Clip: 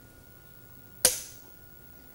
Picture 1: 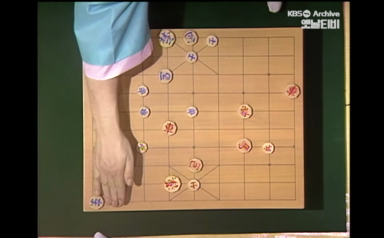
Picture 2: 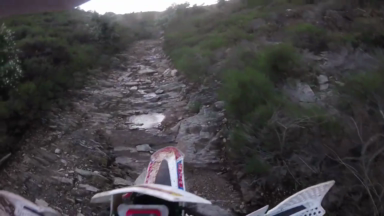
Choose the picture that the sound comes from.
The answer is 1